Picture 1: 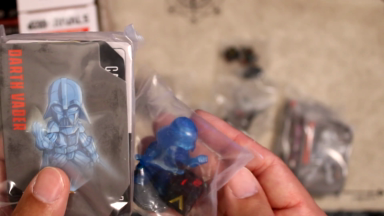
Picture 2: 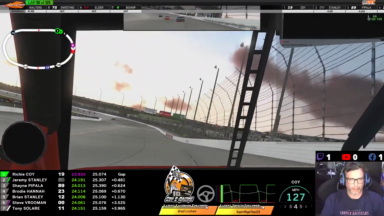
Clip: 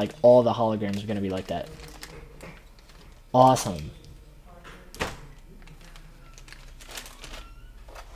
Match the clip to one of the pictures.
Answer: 1